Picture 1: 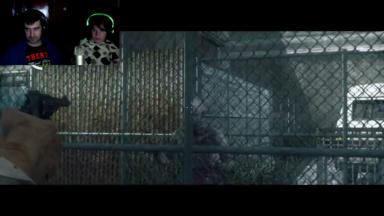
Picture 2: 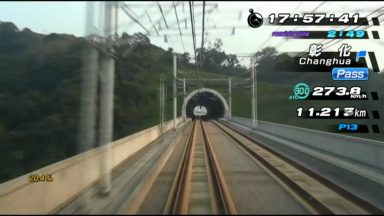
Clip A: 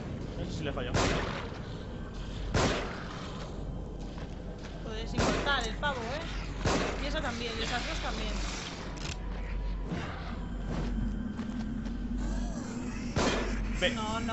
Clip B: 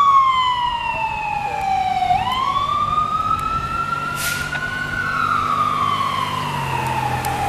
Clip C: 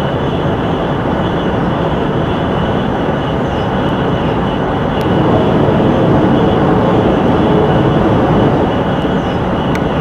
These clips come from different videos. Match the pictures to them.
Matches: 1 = A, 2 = C